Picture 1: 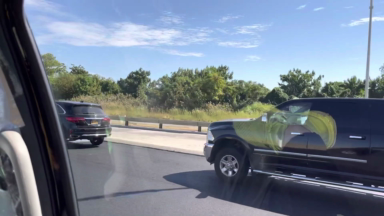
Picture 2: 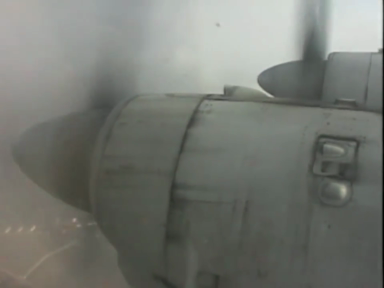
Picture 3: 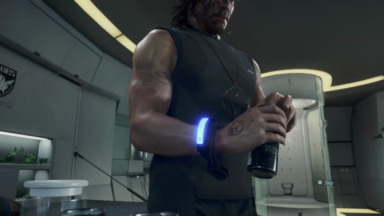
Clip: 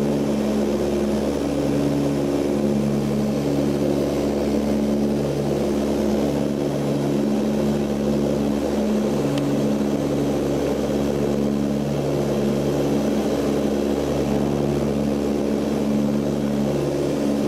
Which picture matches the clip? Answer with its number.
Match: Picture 2